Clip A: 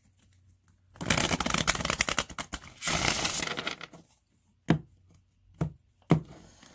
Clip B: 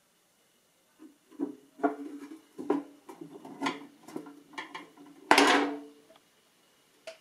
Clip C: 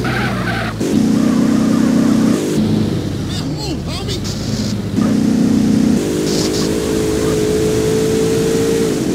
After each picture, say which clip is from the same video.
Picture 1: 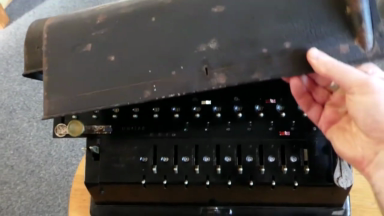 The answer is B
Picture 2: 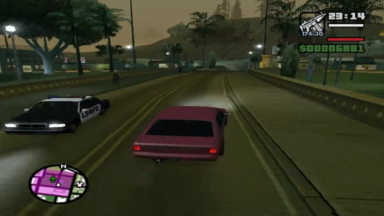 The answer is C